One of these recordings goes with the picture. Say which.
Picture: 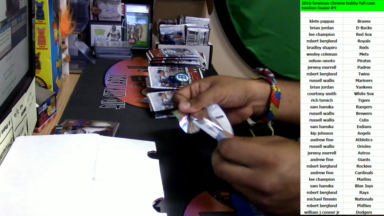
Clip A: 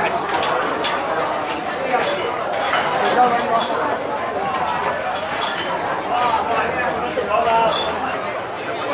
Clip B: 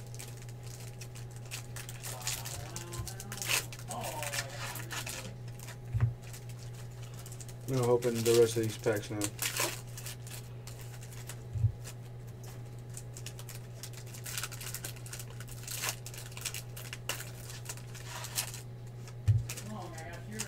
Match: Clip B